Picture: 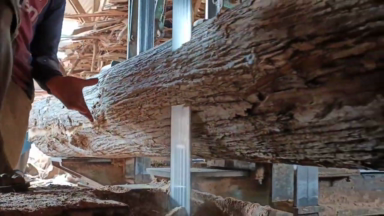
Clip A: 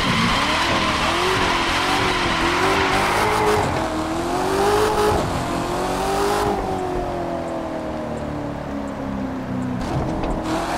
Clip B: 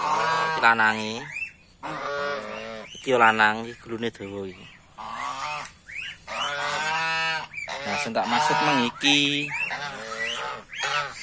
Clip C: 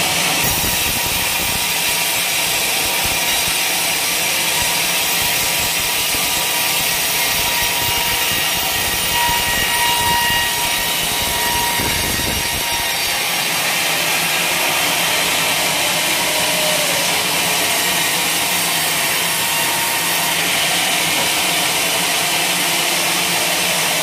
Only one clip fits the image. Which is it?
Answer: C